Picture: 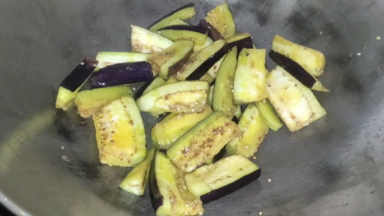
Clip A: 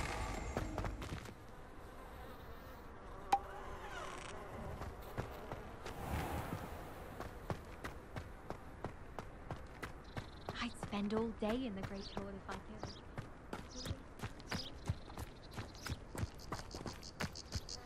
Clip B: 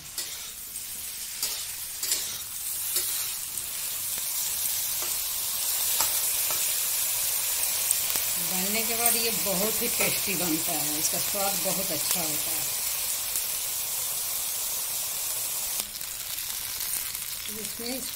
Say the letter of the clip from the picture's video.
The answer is B